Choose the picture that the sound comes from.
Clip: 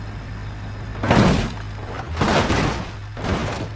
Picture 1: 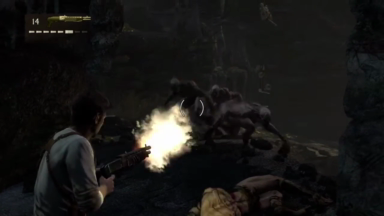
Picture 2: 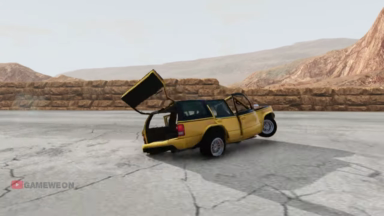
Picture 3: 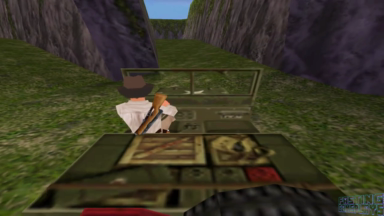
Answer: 2